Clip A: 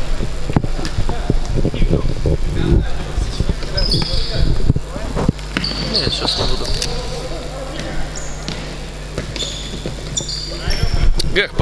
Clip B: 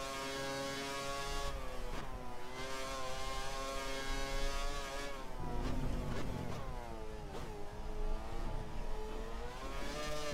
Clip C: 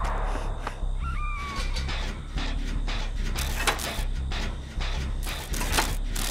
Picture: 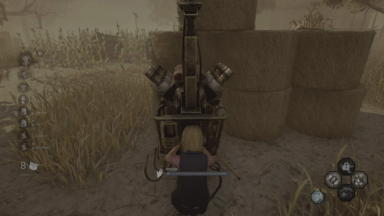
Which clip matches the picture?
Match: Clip C